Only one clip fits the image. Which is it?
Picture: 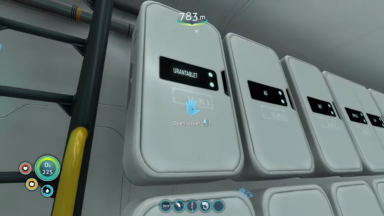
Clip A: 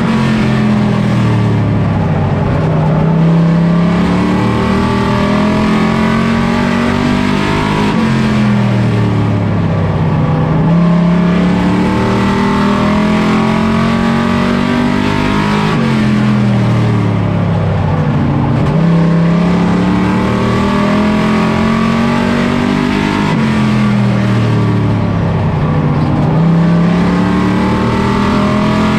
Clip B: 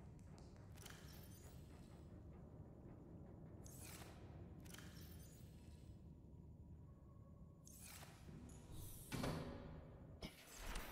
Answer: B